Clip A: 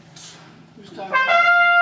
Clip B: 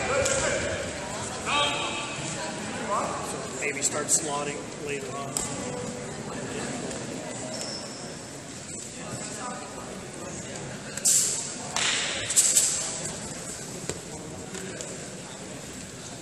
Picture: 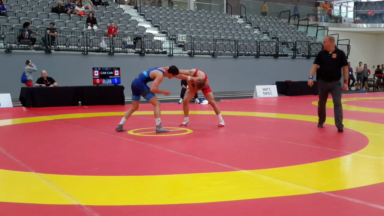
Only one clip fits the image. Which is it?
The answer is B